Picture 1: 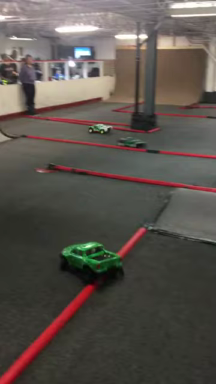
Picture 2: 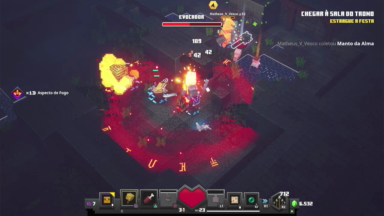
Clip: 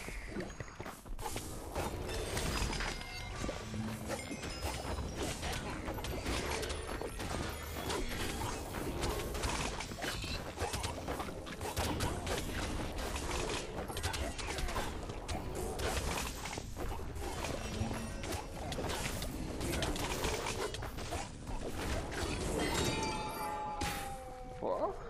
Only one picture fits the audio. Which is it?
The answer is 2